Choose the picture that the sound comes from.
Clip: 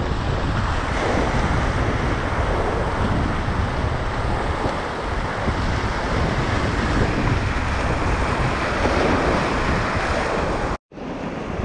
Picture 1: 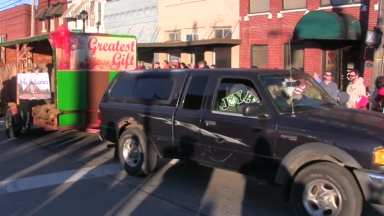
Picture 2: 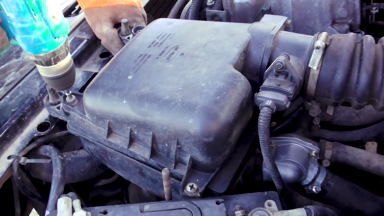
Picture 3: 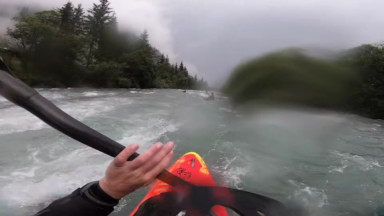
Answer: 3